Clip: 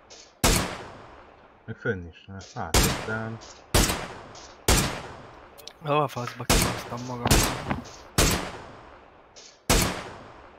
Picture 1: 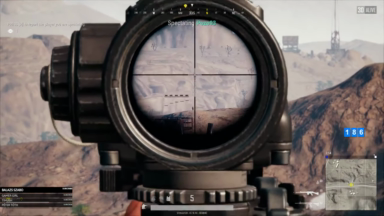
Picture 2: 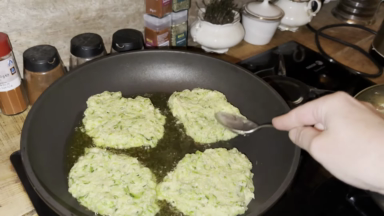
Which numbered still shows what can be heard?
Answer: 1